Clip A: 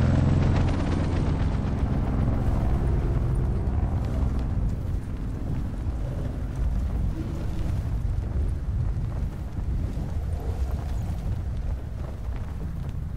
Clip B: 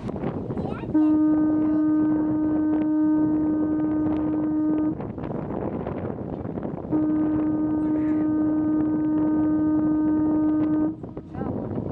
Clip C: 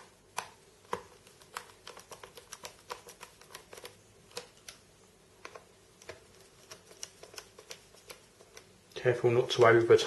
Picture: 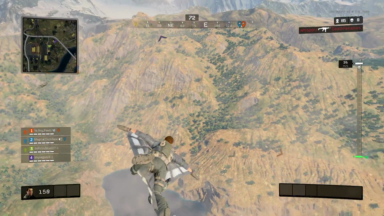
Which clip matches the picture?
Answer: A